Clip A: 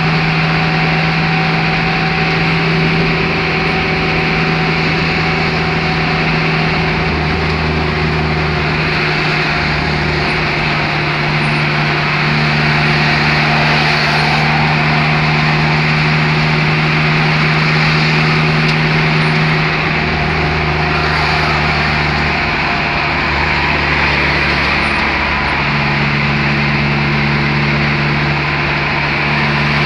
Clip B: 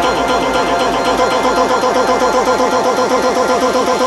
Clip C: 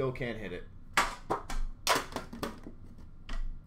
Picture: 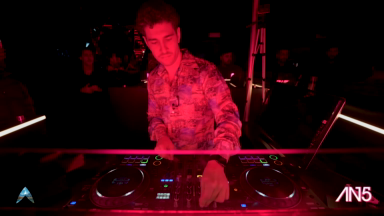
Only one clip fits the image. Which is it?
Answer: B